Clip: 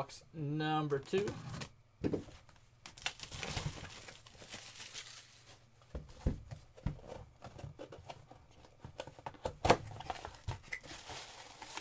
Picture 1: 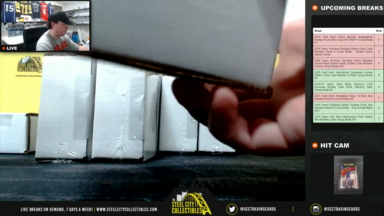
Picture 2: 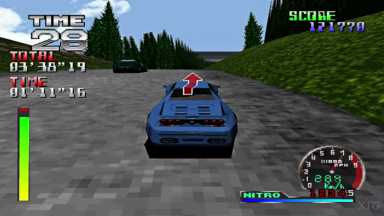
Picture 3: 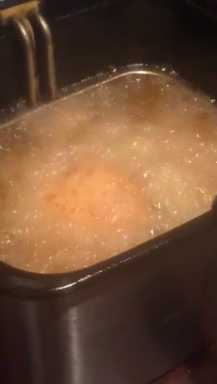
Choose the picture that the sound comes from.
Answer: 1